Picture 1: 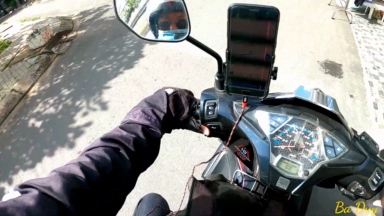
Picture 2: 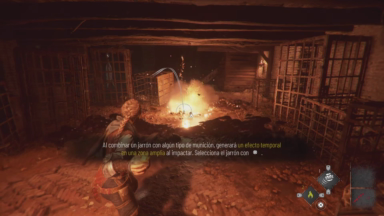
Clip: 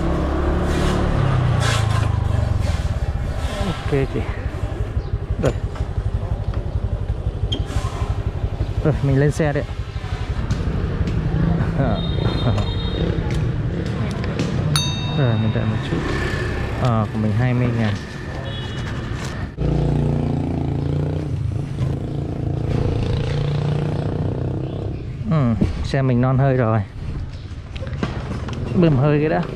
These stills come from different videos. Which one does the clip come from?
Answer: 1